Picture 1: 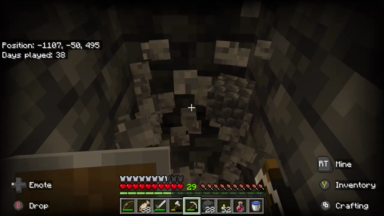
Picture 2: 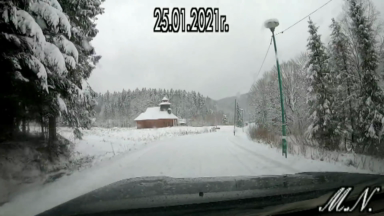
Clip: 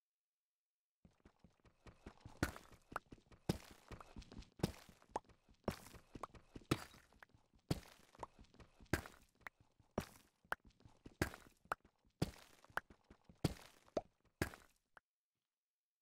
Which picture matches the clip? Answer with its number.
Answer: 1